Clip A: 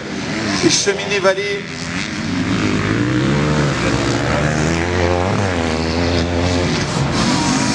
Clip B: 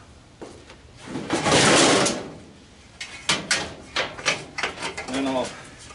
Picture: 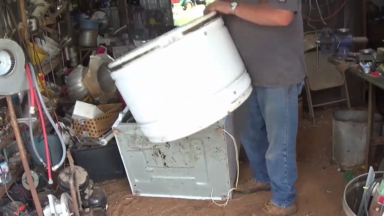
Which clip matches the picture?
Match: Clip B